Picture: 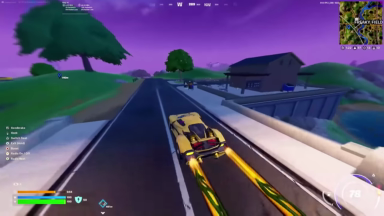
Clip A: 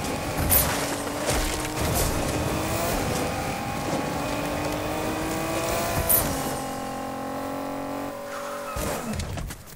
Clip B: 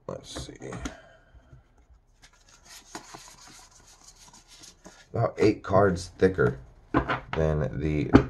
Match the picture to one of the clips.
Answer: A